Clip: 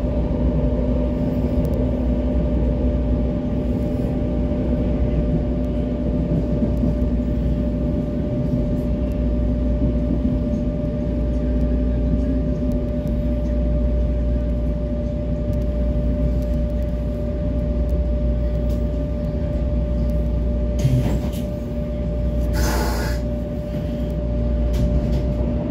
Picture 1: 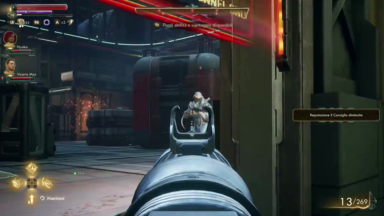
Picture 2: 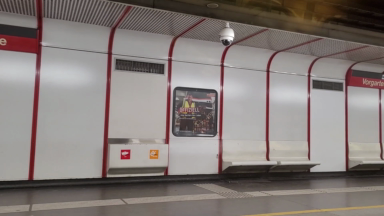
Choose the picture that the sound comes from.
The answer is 2